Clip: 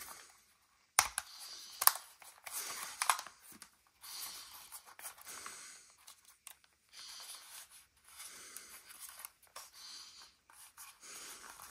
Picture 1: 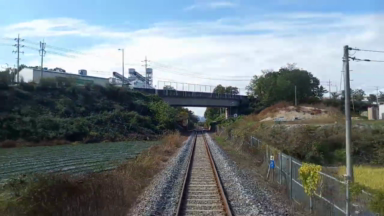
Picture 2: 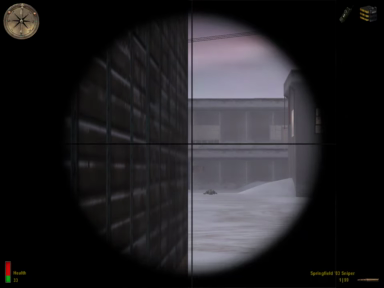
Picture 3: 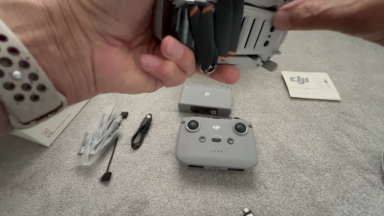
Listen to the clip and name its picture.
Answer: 3